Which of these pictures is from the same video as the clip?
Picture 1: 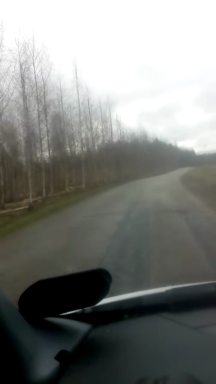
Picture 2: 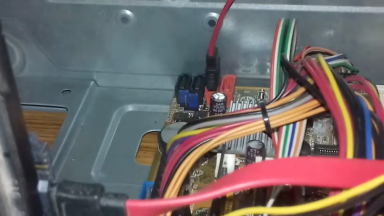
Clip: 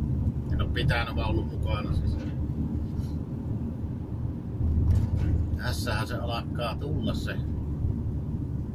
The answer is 1